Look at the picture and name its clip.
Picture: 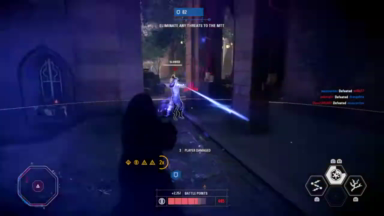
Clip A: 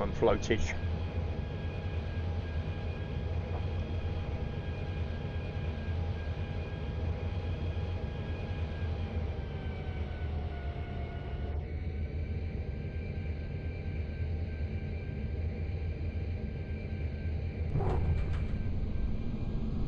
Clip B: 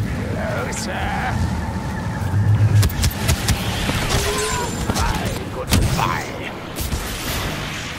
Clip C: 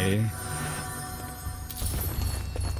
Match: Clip B